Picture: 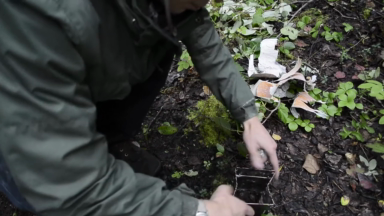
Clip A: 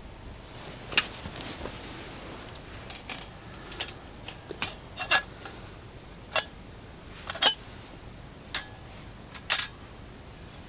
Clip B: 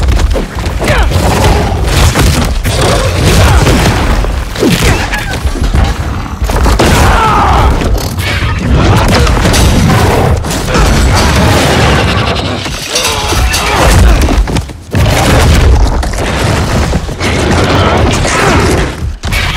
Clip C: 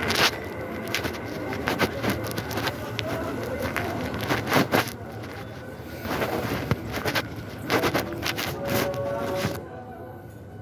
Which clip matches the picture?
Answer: A